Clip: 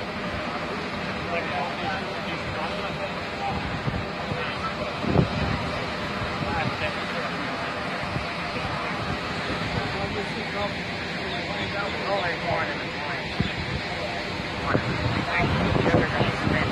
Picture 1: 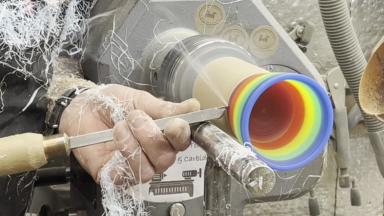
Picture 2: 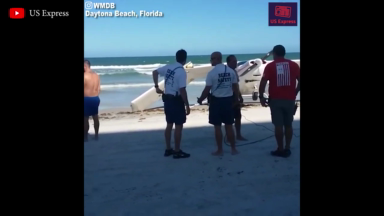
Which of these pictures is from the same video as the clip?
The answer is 2